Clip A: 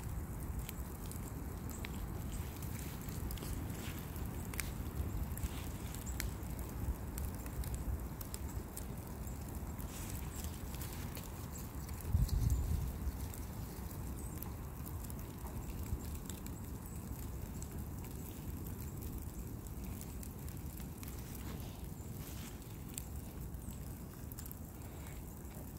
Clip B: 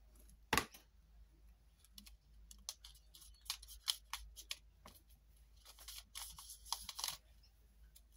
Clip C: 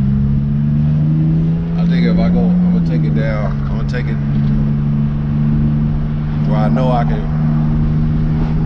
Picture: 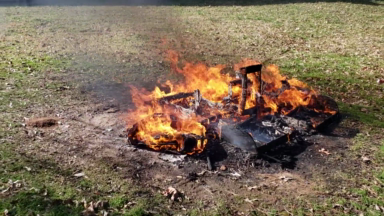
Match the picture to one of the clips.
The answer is A